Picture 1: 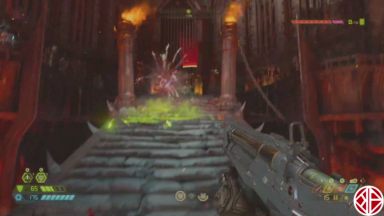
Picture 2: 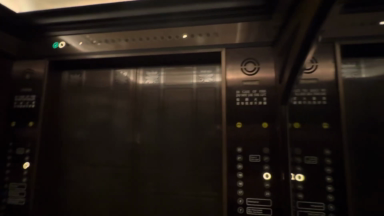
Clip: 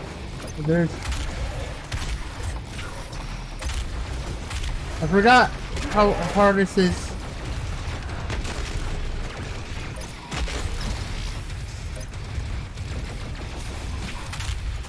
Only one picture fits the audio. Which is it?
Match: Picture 1